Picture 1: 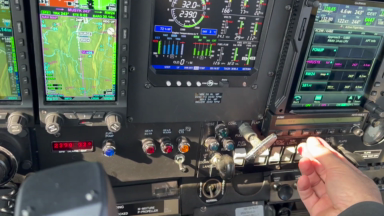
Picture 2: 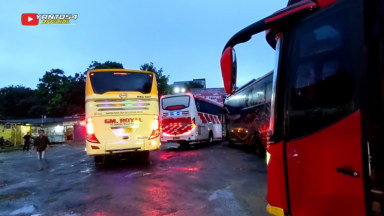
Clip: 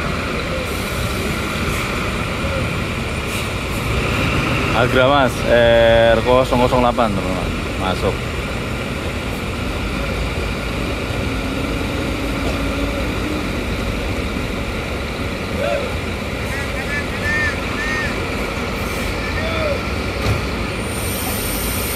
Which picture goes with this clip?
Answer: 2